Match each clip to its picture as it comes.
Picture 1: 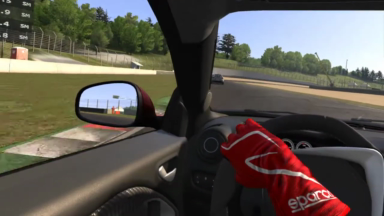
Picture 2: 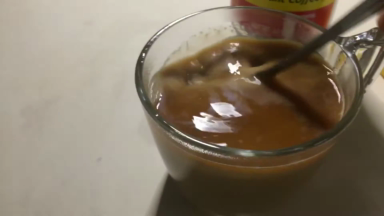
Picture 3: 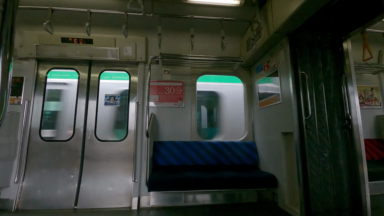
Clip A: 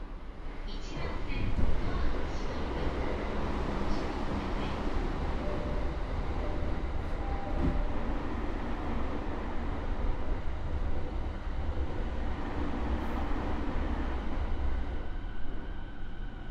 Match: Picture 3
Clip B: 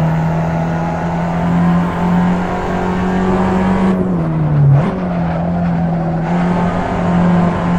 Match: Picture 1